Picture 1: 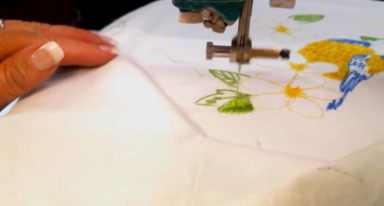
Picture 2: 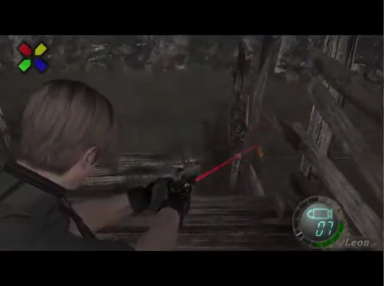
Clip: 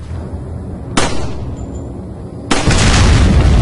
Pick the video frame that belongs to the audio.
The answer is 2